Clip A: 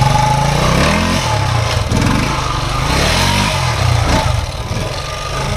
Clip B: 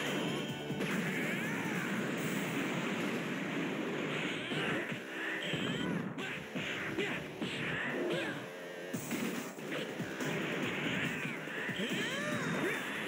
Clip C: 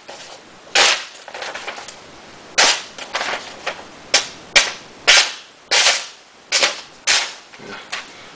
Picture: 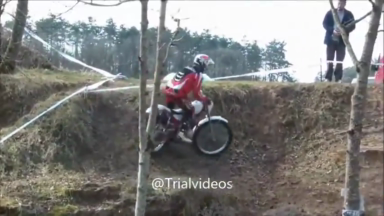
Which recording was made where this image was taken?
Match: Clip A